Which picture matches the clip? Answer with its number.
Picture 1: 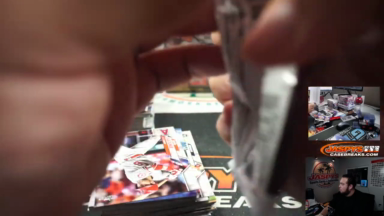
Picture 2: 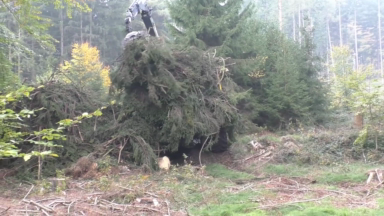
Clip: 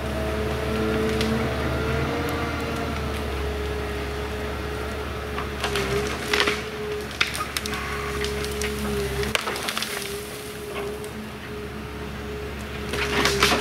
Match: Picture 2